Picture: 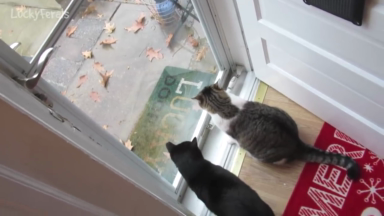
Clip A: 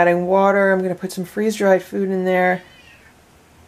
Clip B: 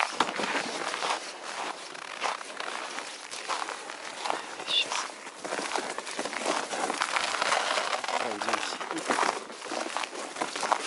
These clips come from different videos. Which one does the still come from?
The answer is A